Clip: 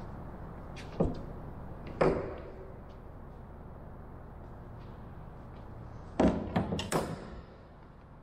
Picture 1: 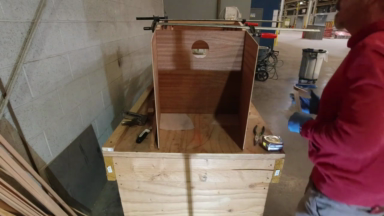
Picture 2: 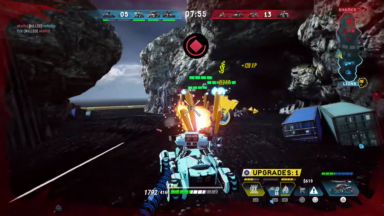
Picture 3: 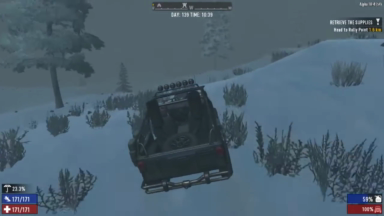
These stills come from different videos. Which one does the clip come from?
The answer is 1